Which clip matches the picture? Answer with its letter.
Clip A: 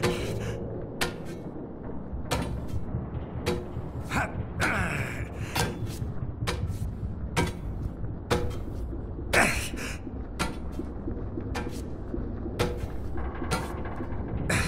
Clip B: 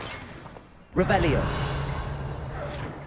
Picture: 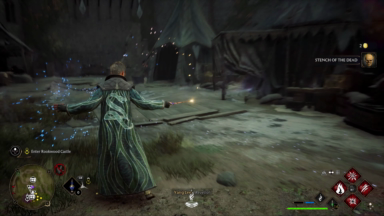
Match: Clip B